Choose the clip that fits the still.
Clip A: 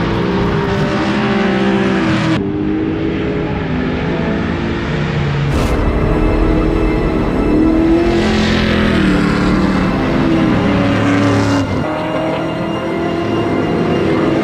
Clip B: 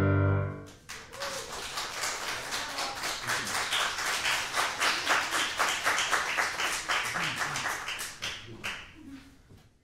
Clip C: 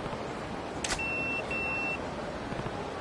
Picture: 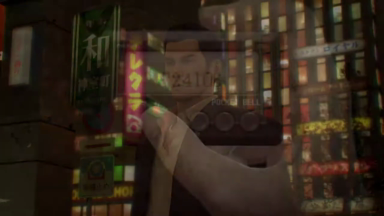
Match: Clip C